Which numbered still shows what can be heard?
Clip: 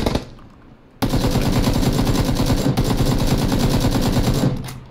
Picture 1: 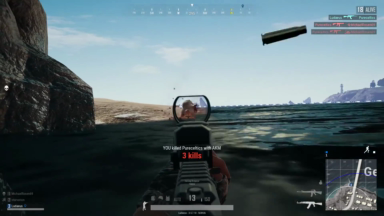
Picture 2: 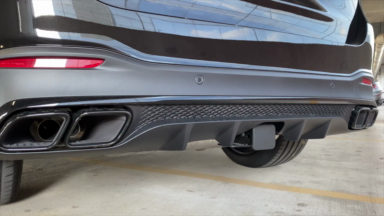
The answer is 1